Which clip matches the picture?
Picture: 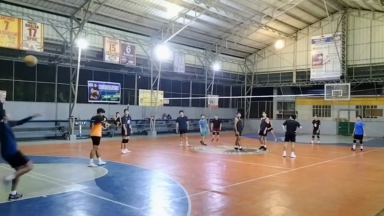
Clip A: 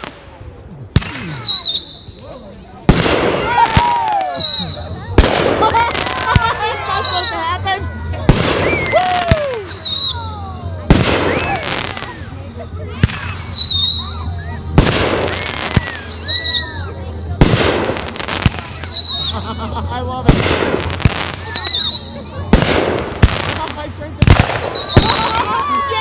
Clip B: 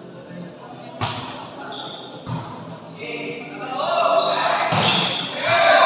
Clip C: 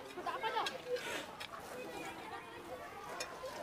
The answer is B